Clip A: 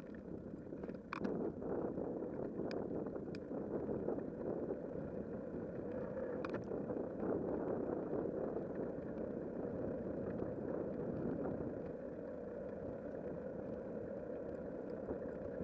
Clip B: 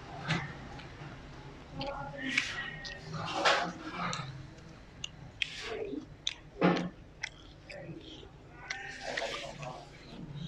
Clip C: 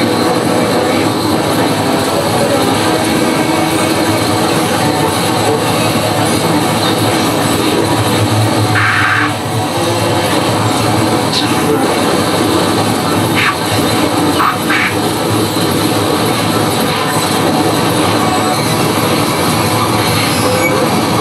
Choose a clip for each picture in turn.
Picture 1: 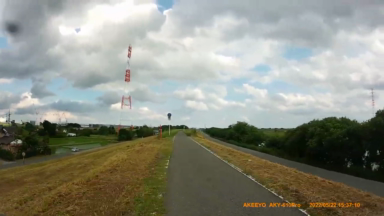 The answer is A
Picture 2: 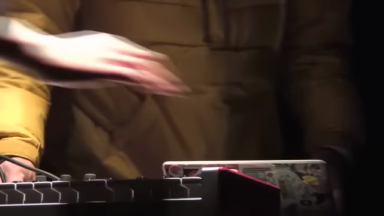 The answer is C